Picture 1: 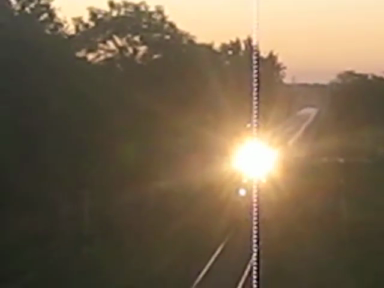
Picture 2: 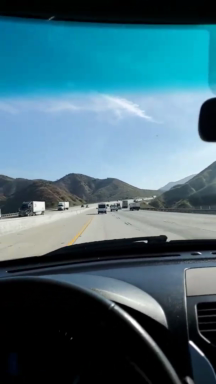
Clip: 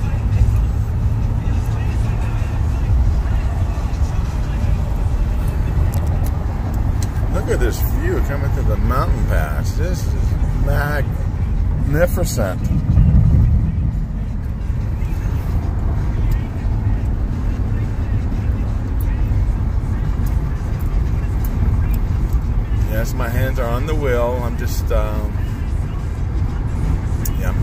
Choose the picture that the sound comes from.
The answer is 2